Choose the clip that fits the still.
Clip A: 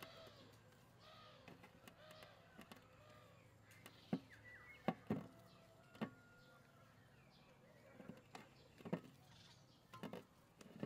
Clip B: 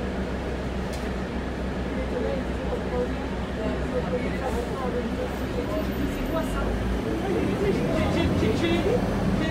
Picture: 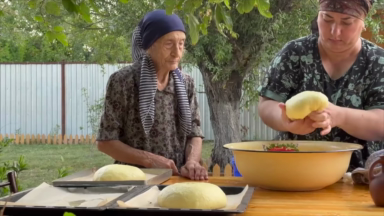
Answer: A